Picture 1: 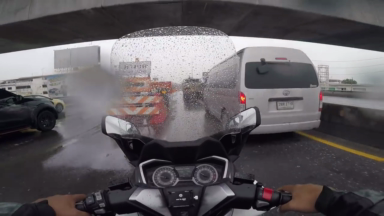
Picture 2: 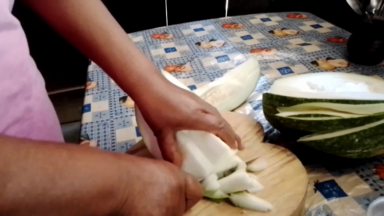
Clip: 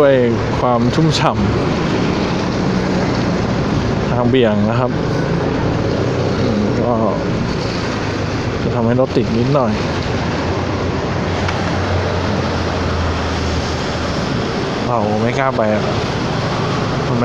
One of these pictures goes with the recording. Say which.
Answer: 1